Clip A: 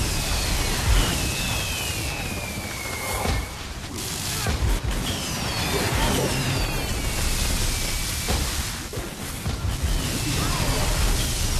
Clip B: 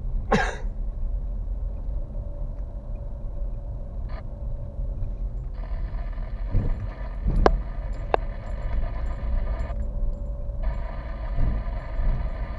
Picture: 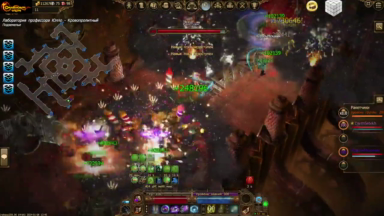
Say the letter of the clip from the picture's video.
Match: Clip A